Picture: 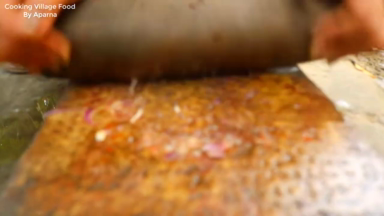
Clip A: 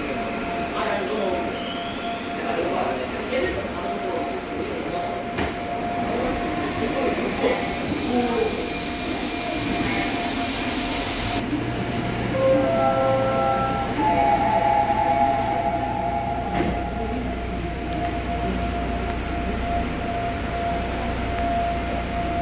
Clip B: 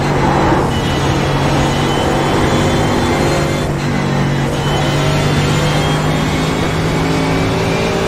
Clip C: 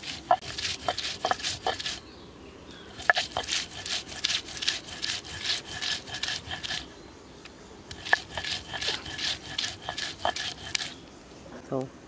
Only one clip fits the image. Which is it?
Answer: C